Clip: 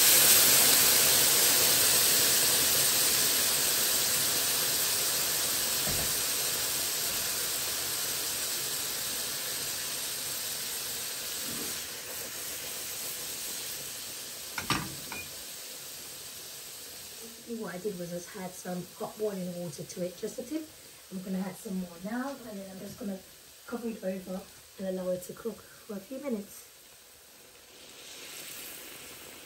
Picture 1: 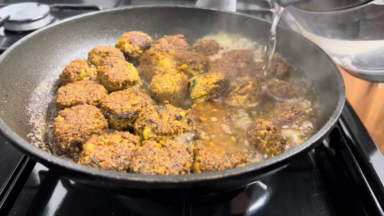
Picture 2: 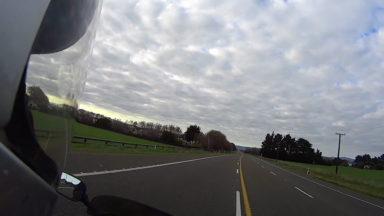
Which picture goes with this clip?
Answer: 1